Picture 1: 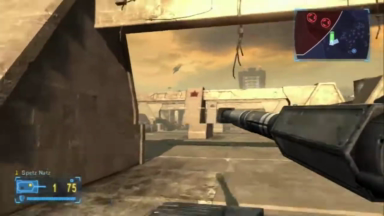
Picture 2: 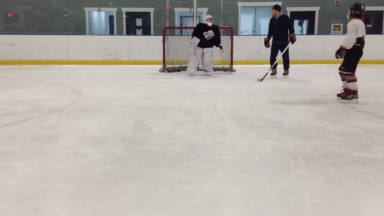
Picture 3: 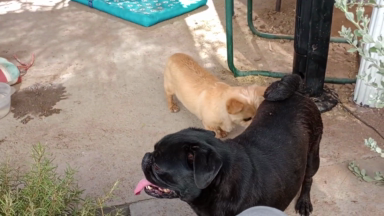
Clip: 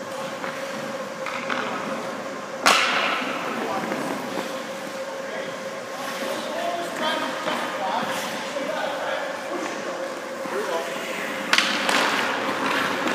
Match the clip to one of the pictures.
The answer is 2